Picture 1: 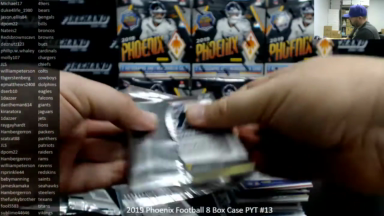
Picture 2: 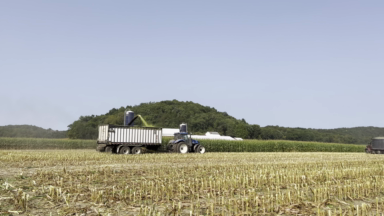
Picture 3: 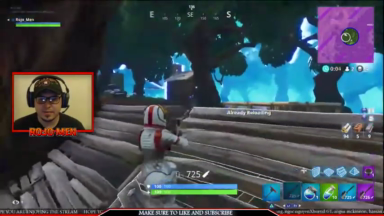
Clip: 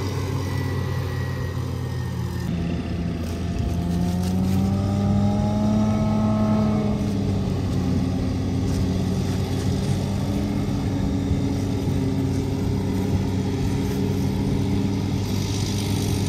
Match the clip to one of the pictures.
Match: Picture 2